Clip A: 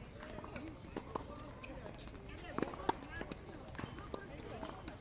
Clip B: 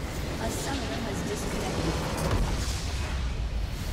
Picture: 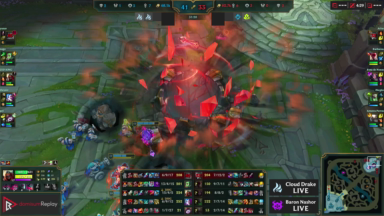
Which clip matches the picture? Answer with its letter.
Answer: B